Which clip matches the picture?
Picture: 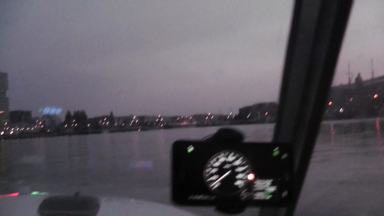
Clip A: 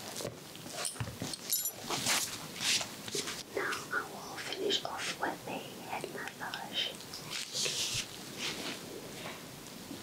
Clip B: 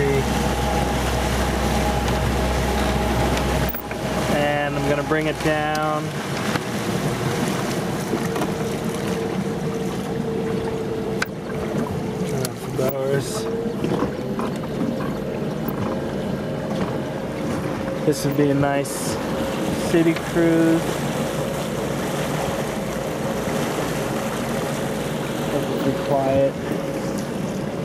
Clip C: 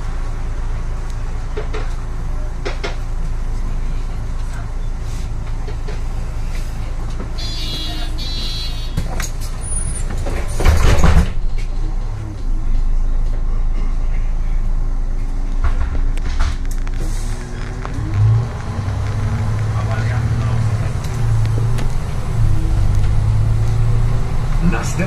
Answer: B